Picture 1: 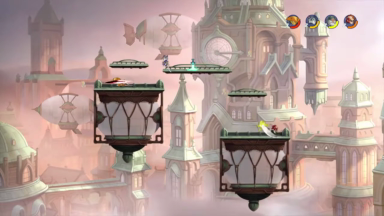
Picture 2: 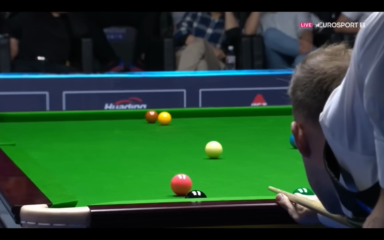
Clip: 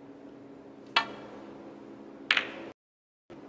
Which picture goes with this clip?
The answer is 2